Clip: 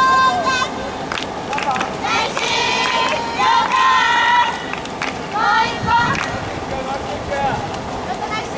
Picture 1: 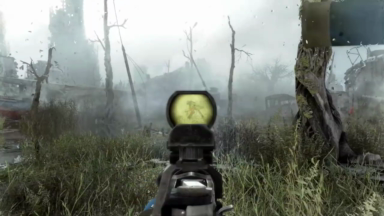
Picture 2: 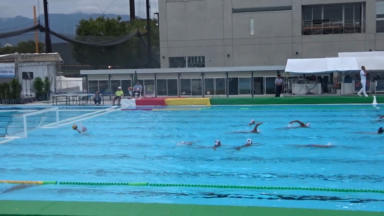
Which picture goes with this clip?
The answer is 2